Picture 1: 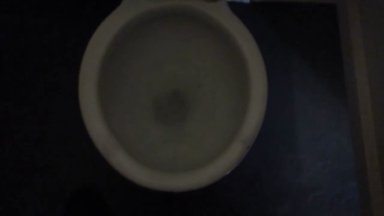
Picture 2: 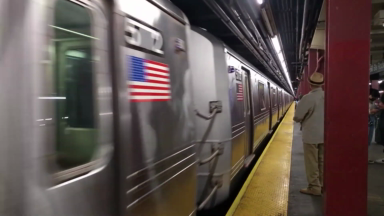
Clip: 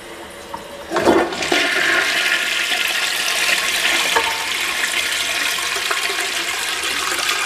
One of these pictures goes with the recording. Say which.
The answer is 1